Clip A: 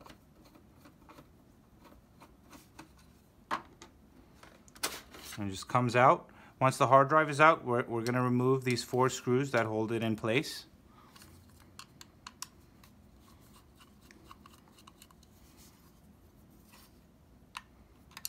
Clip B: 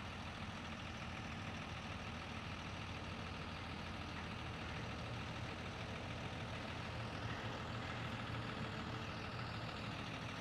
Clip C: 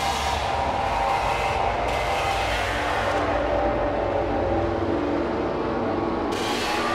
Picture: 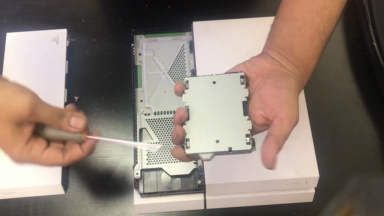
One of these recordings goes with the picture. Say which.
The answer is A